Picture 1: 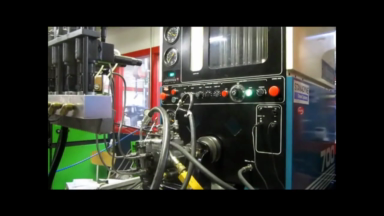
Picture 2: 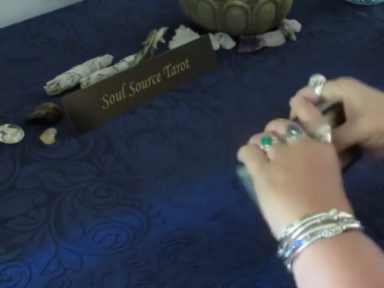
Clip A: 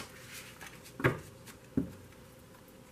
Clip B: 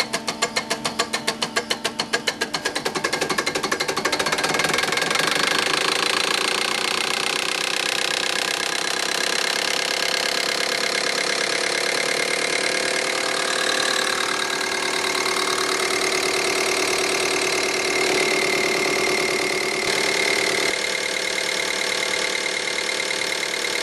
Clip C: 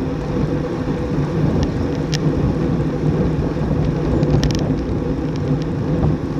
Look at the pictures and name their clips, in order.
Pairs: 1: B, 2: A